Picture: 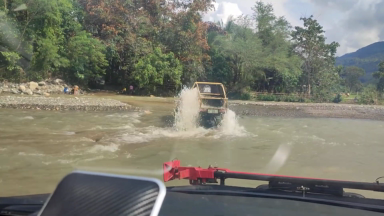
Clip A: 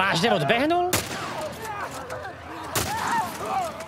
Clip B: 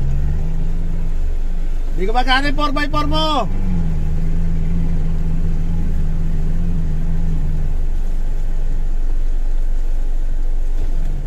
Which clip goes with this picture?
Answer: B